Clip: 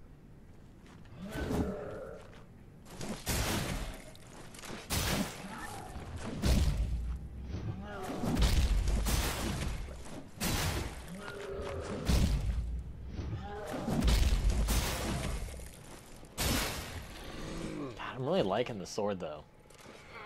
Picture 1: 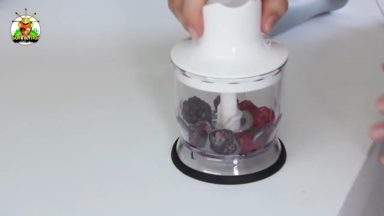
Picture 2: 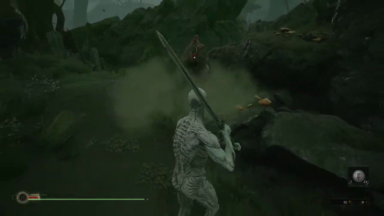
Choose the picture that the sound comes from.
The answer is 2